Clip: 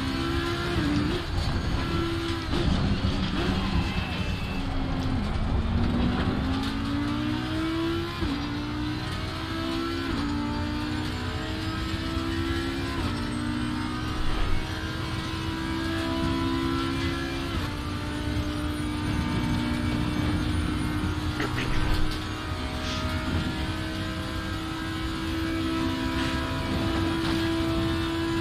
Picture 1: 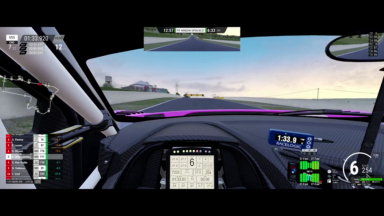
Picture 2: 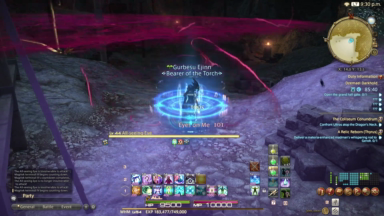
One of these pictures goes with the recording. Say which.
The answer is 1